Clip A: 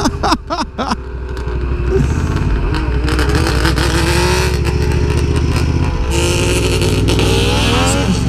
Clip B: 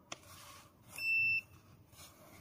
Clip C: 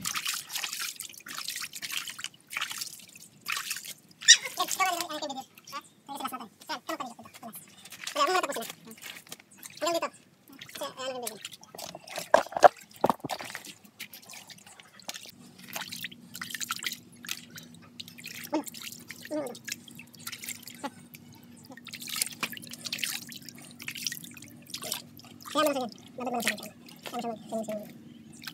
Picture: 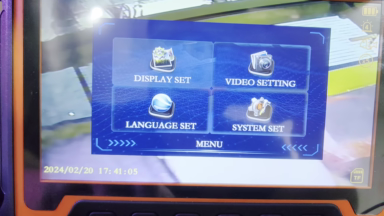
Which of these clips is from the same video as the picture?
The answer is B